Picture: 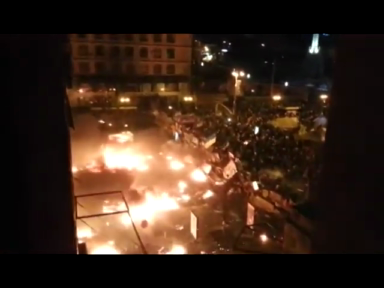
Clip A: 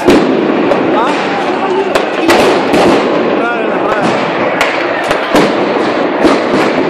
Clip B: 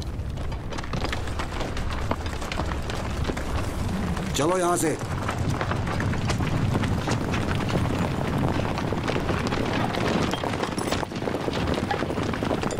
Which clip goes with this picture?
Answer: A